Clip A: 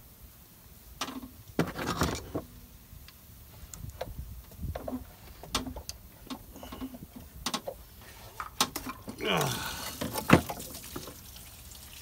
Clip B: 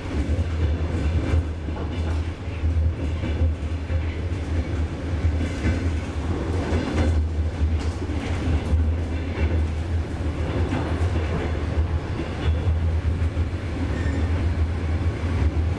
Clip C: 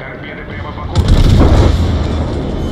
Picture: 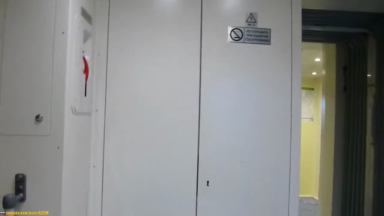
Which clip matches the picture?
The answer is B